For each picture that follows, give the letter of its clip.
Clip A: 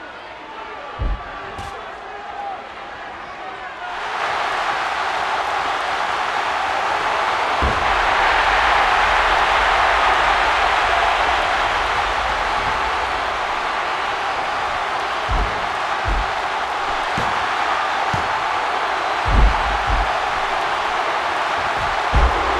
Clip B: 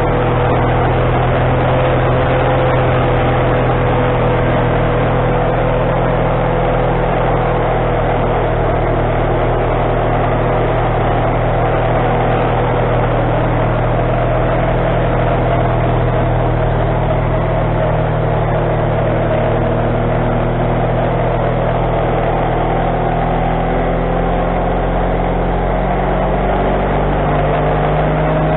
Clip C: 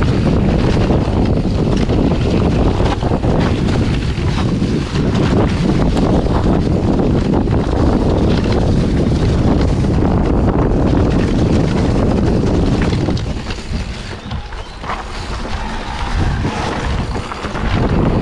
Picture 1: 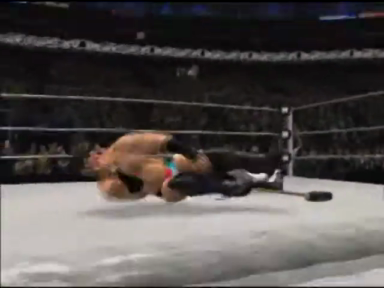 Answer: A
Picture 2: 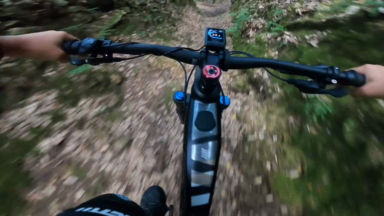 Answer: C